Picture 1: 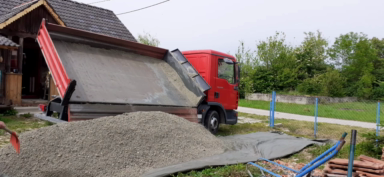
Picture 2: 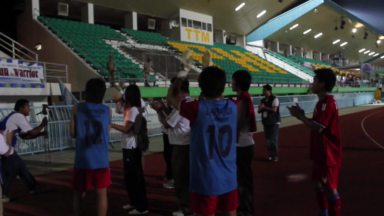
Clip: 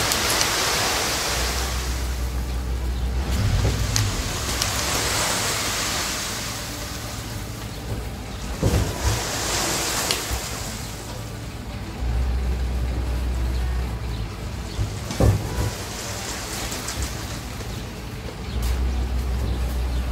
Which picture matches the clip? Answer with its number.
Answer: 1